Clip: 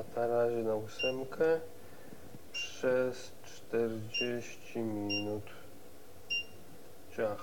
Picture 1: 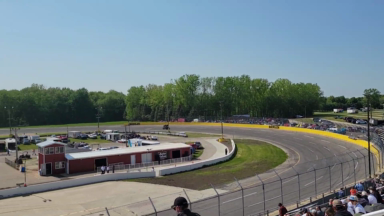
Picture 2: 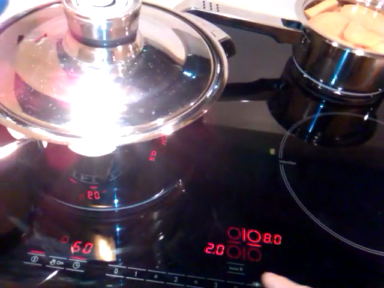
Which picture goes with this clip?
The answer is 2